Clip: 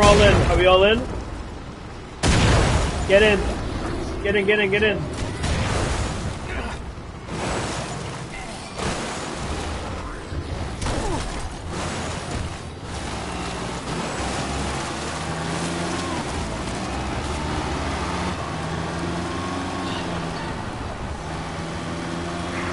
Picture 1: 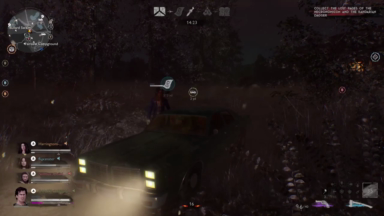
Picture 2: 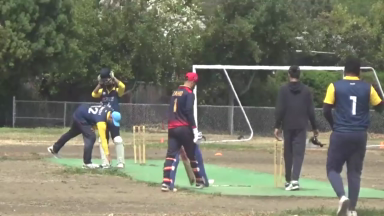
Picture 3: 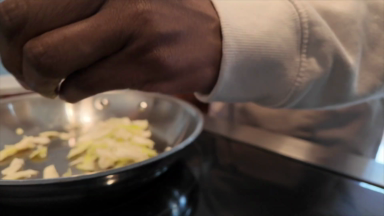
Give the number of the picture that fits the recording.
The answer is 1